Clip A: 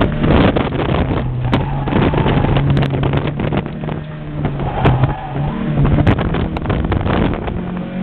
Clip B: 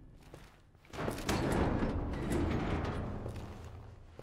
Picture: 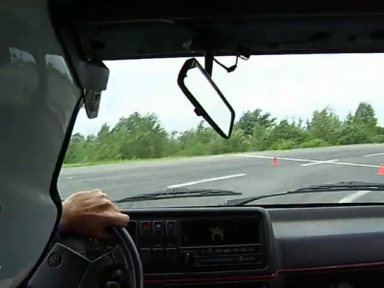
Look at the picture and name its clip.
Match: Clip A